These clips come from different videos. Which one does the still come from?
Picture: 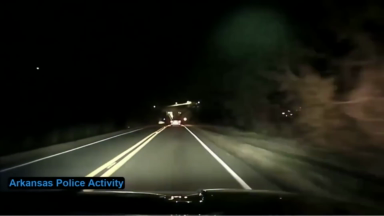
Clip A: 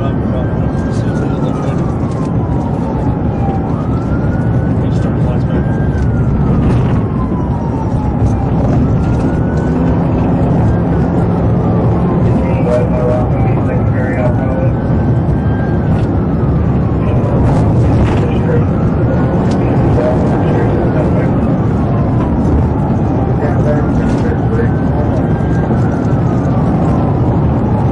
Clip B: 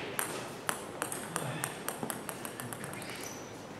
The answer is A